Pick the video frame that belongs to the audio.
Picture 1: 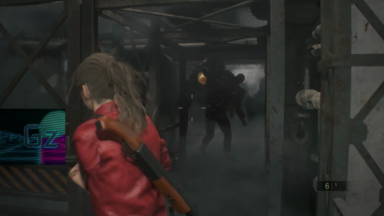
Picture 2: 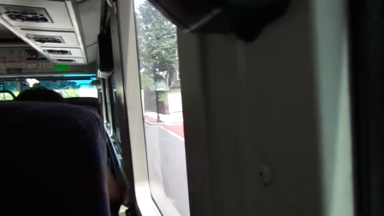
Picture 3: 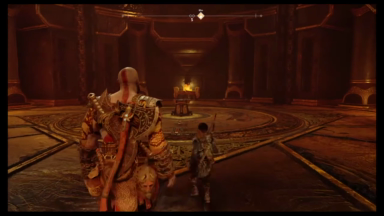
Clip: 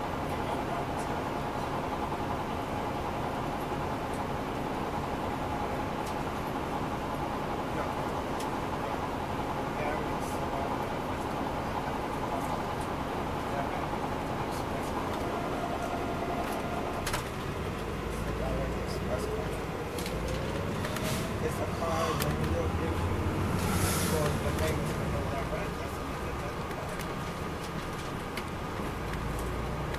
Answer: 2